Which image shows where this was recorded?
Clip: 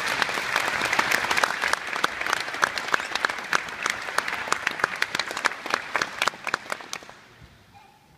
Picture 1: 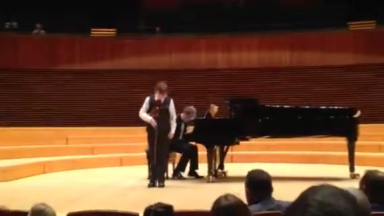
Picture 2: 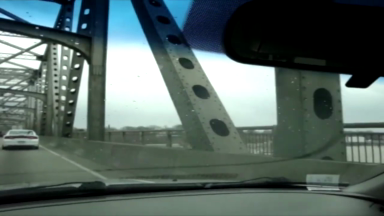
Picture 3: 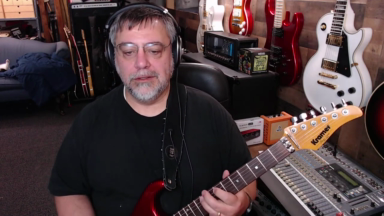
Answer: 1